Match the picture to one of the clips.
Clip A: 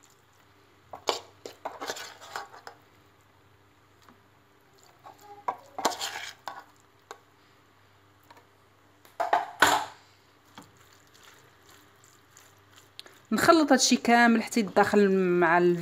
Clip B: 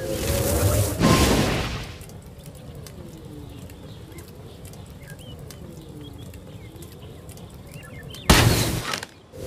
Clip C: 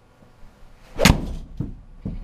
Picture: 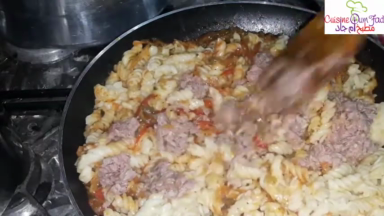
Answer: A